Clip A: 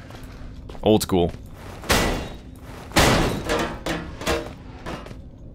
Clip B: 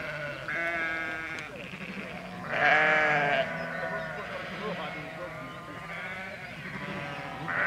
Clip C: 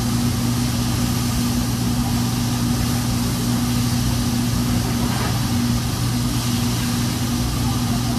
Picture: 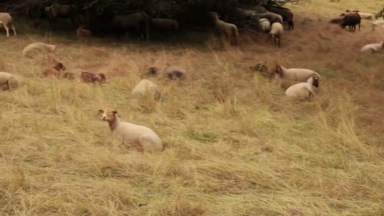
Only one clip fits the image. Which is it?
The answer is B